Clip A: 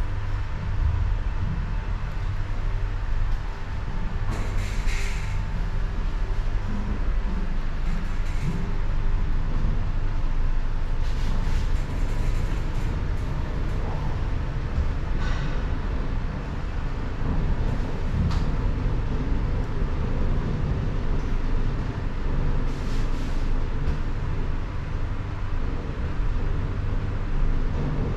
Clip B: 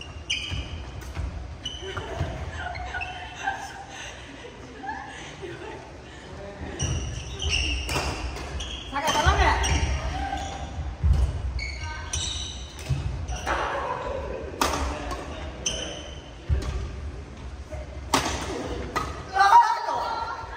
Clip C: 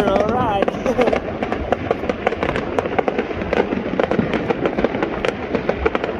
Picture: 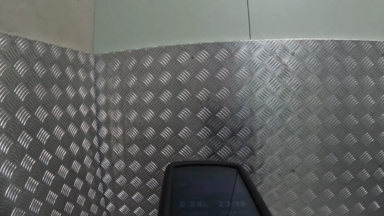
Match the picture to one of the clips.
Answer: A